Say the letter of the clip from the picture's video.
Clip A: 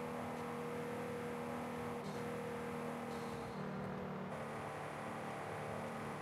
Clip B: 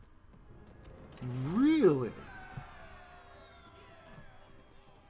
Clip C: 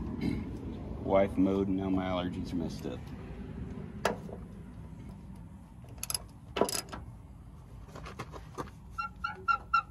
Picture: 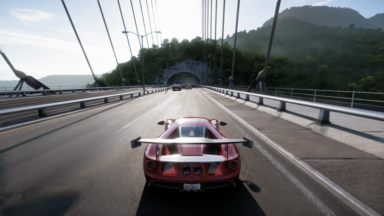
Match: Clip A